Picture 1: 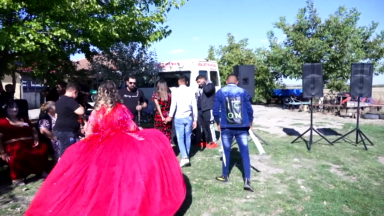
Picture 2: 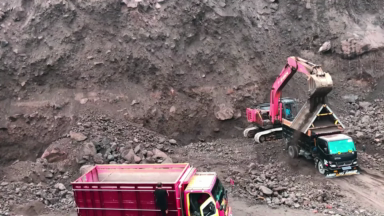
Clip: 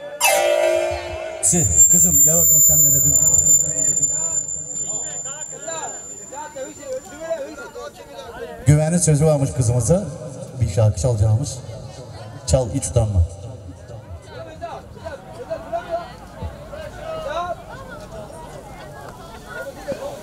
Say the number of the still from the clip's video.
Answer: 1